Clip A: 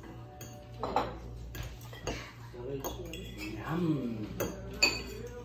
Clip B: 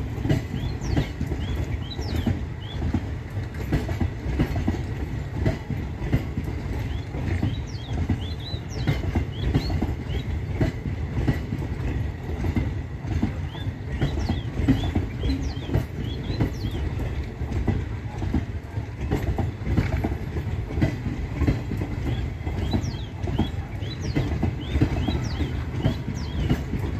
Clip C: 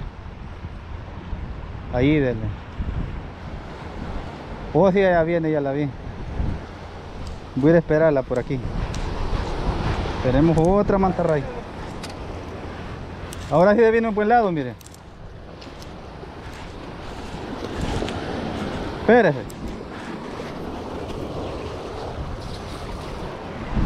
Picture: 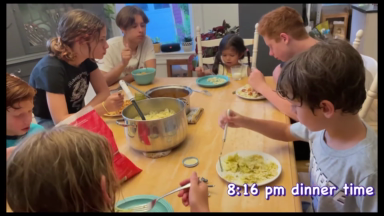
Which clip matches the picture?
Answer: A